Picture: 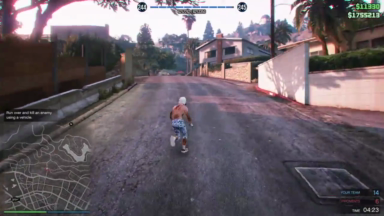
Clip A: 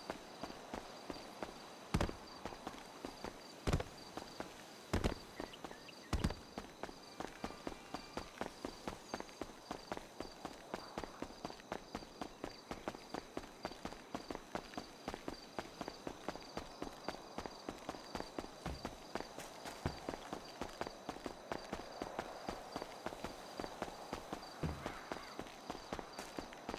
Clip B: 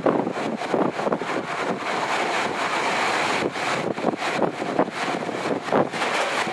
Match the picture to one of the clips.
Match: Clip A